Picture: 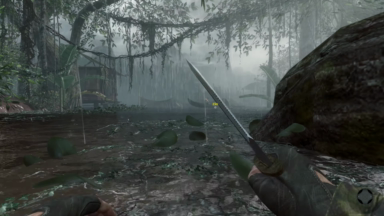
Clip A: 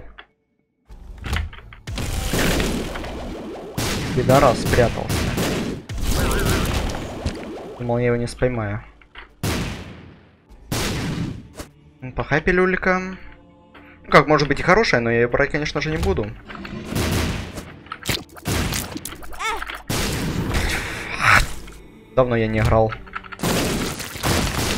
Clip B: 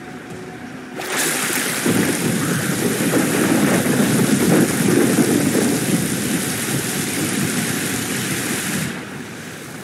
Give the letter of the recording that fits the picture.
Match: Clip B